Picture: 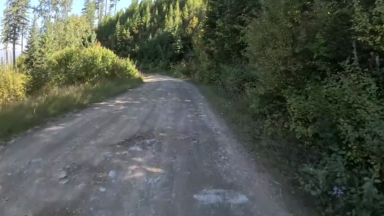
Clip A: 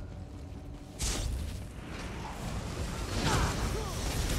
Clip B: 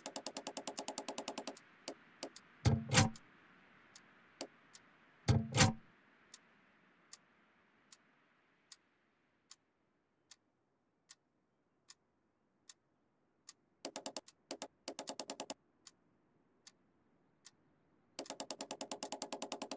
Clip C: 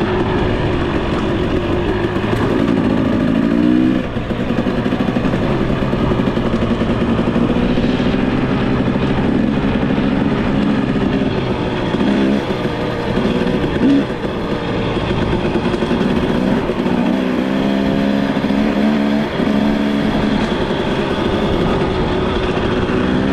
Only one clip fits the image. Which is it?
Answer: C